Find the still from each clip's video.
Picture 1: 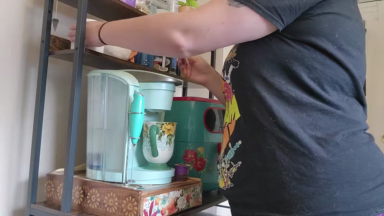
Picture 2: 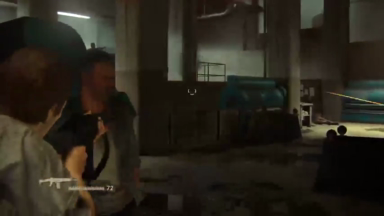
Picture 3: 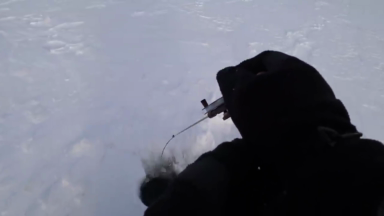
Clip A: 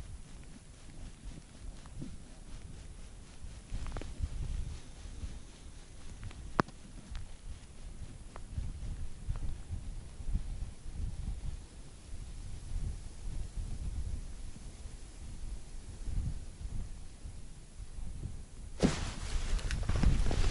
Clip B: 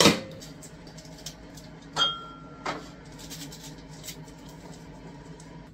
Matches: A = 3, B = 1